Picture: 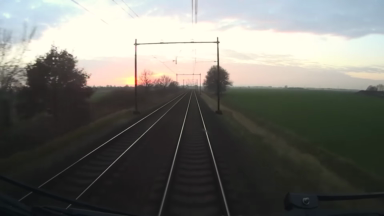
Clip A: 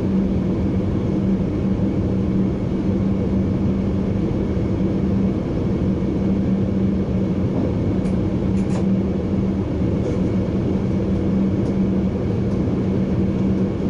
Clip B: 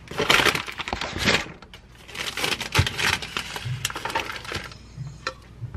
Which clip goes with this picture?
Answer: A